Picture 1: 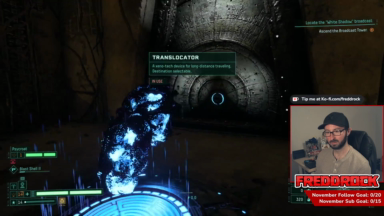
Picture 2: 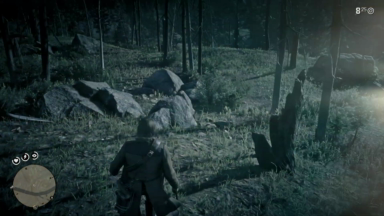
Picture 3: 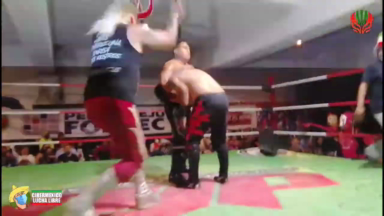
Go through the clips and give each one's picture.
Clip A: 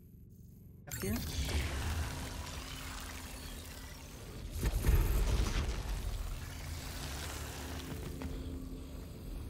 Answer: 1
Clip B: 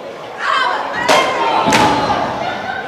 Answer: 3